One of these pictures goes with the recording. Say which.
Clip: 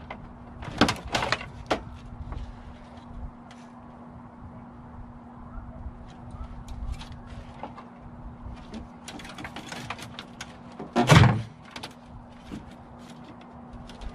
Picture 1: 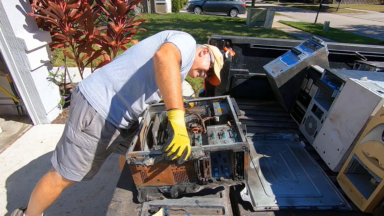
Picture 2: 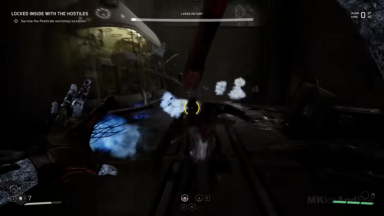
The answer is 1